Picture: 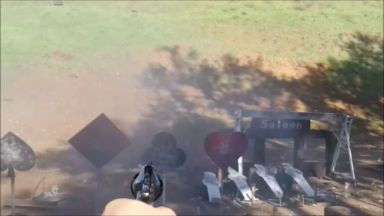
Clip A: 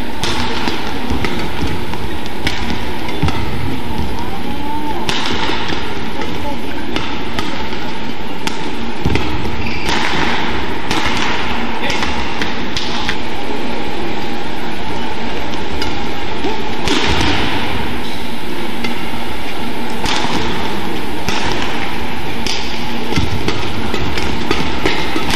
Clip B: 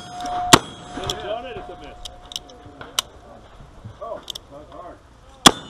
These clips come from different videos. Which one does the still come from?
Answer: B